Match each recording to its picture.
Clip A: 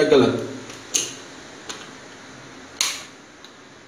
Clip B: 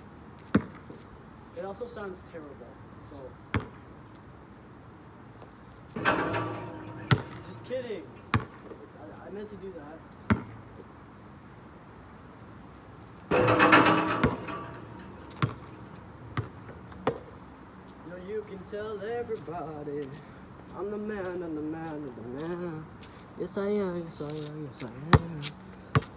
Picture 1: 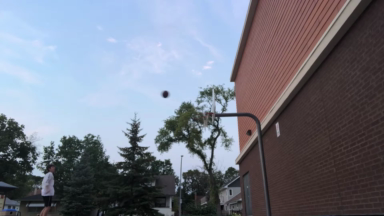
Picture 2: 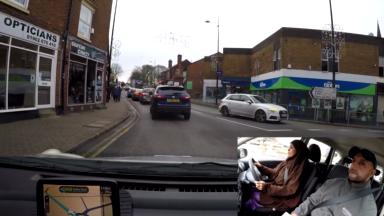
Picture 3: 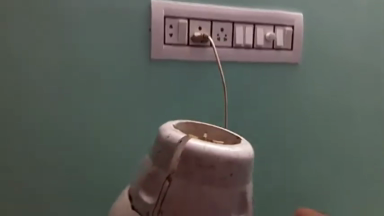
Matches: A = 3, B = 1